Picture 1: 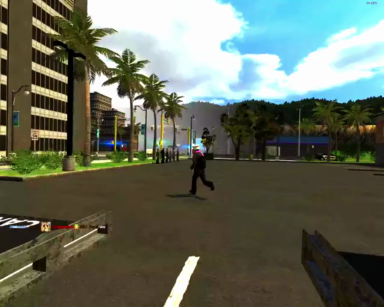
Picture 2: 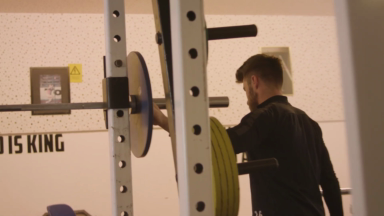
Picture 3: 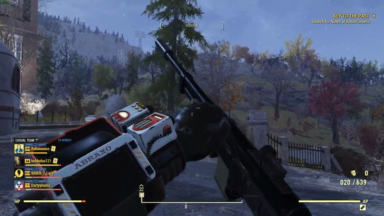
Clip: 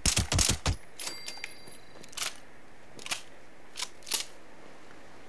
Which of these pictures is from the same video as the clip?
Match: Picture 3